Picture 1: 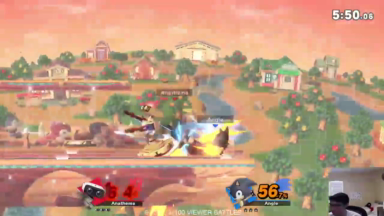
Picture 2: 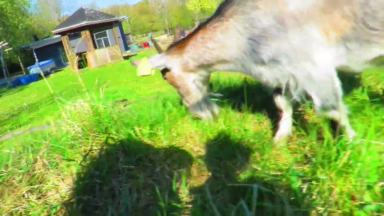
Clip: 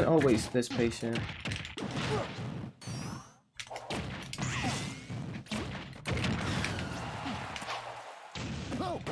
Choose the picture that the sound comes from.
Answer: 1